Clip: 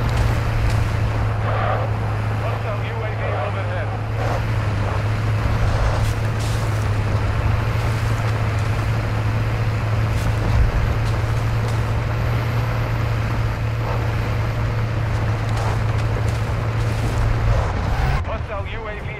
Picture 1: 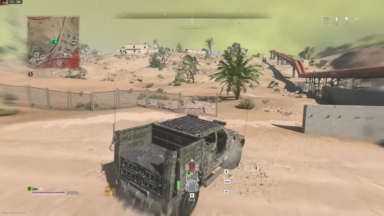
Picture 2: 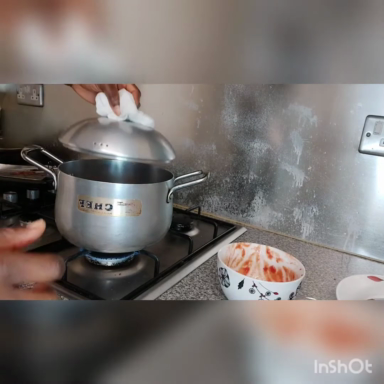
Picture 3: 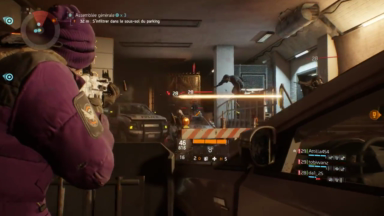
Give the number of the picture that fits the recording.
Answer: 1